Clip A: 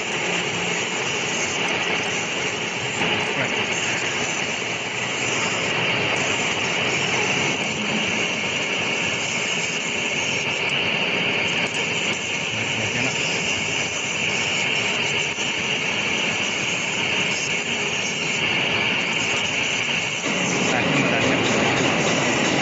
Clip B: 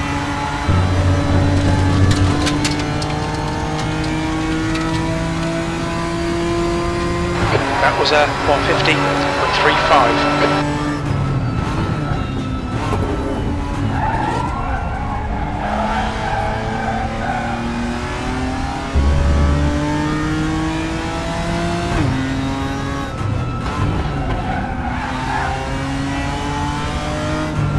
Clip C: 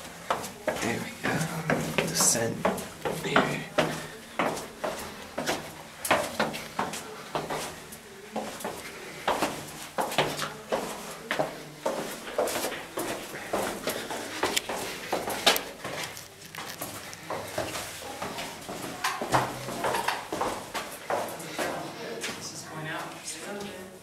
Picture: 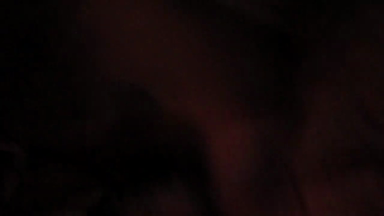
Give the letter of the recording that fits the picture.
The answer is C